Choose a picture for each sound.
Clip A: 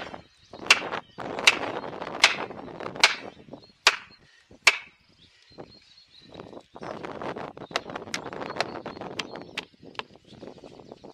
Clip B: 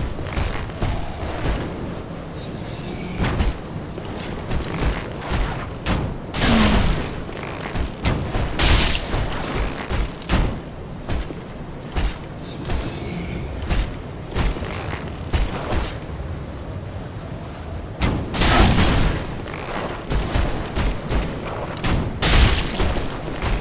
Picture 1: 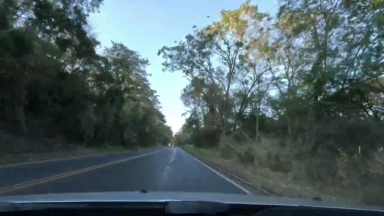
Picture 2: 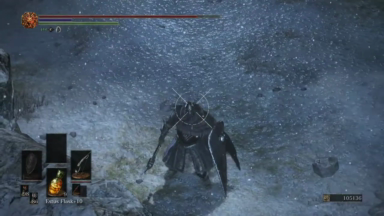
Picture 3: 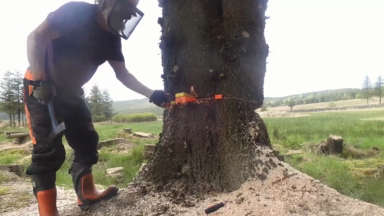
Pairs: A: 3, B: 2